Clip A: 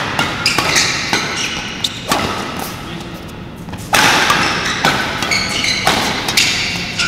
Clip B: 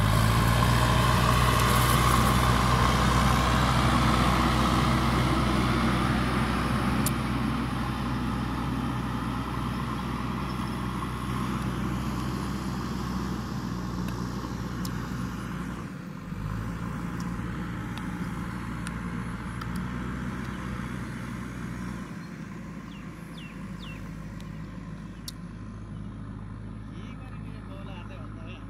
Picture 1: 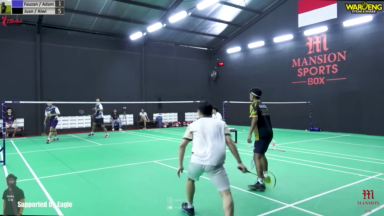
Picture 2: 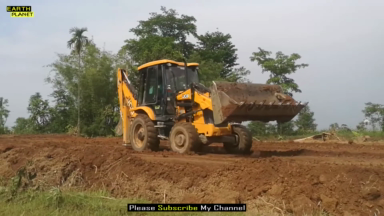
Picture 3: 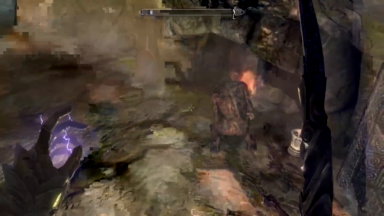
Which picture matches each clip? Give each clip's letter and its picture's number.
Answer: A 1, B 2